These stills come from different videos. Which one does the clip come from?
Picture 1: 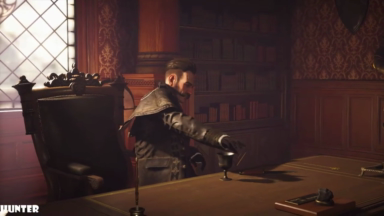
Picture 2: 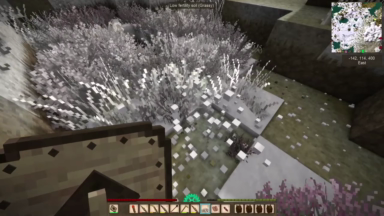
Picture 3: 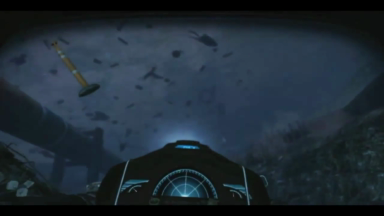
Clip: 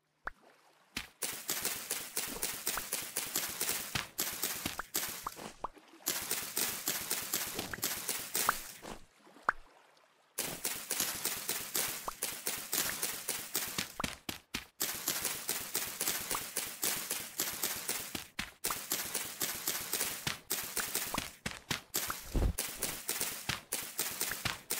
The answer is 2